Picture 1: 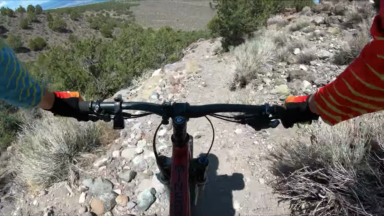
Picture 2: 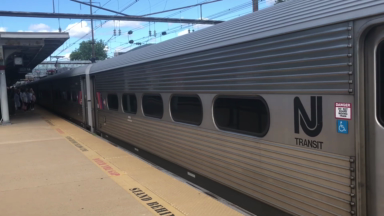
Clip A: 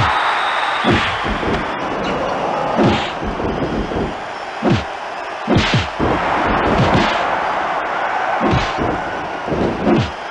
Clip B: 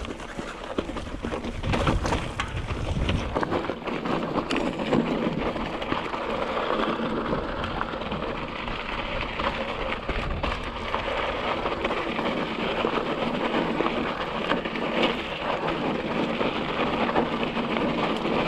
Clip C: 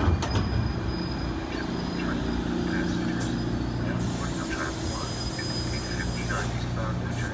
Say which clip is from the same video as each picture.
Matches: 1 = B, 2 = C